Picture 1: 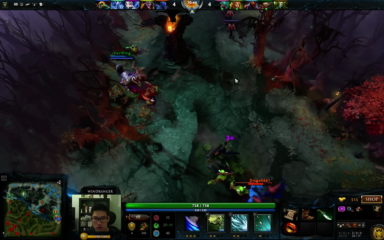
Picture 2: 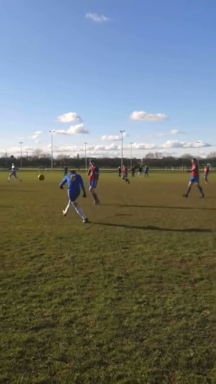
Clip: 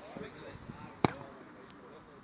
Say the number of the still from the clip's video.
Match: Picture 2